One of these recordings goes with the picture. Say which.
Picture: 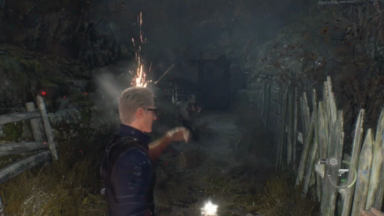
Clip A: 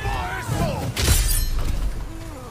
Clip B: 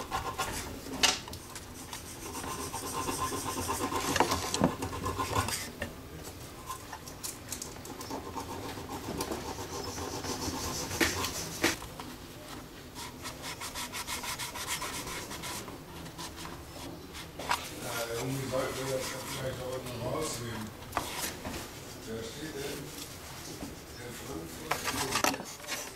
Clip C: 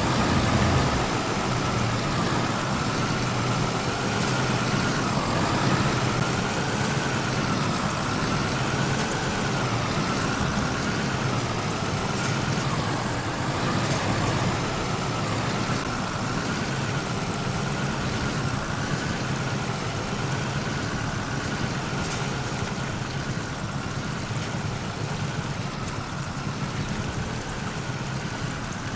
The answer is A